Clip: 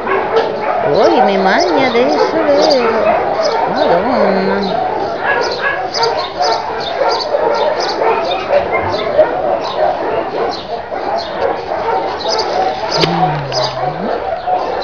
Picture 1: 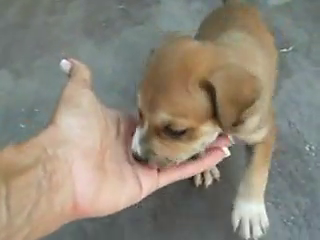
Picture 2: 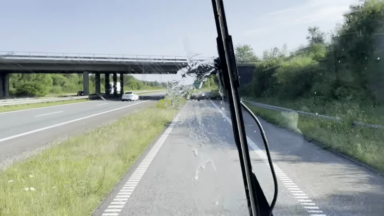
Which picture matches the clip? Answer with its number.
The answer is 1